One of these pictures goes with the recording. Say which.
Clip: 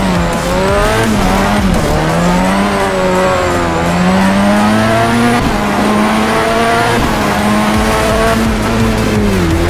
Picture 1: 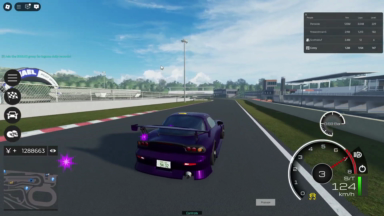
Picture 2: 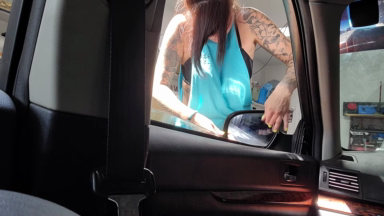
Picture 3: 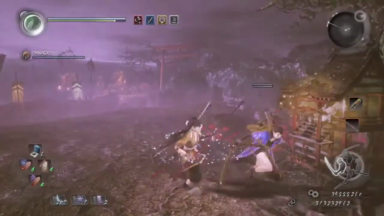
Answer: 1